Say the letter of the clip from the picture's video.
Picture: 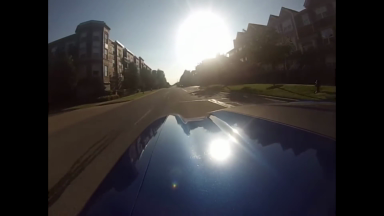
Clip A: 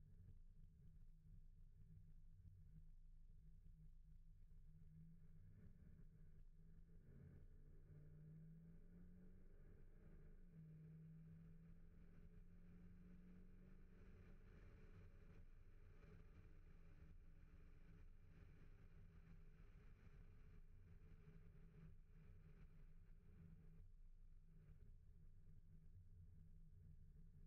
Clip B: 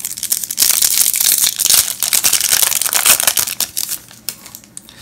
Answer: A